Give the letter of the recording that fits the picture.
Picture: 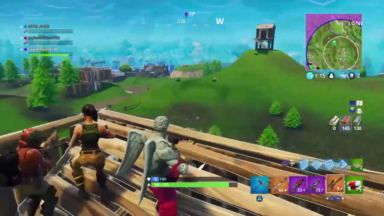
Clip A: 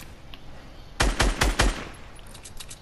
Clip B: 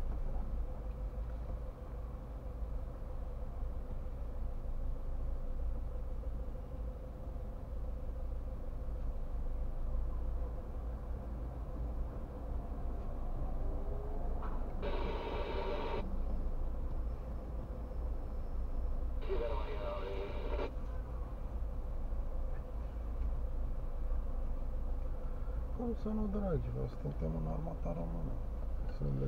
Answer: A